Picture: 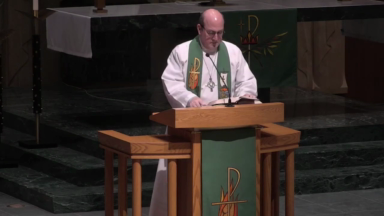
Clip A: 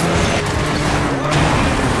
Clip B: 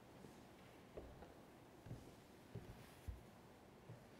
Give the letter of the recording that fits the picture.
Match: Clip B